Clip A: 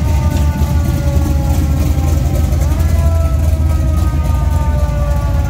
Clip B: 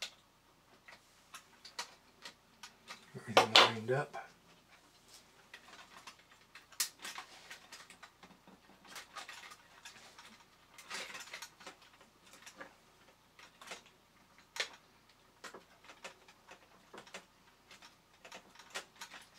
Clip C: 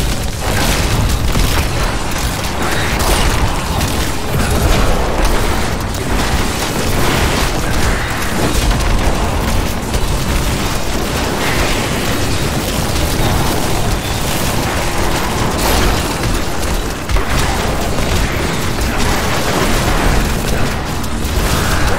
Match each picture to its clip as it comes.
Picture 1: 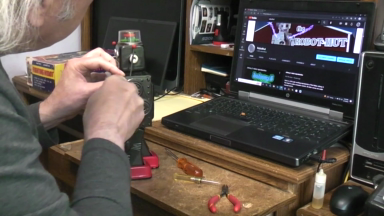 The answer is B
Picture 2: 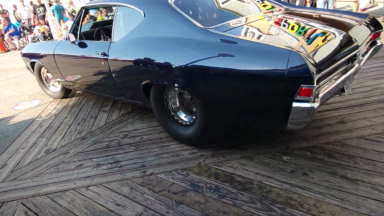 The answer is A